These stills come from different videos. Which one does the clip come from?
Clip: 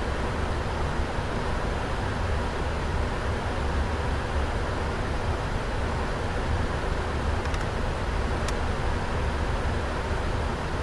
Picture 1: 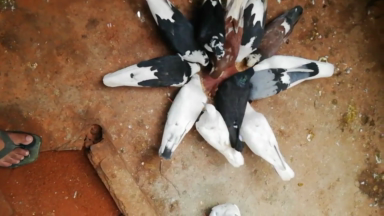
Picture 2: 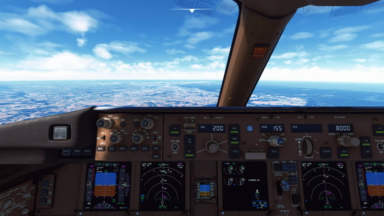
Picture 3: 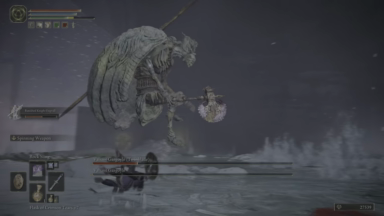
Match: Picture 2